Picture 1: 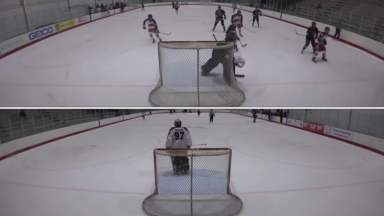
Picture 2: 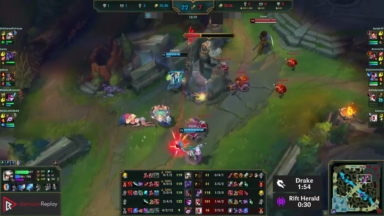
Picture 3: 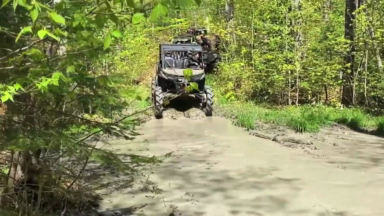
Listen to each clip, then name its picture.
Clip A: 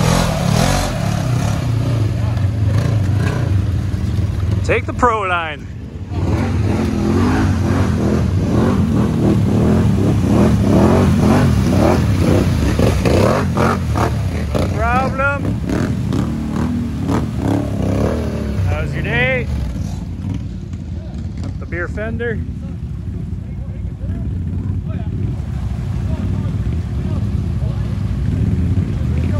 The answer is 3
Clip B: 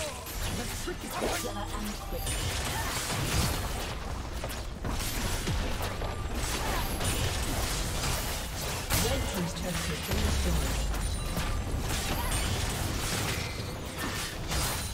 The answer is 2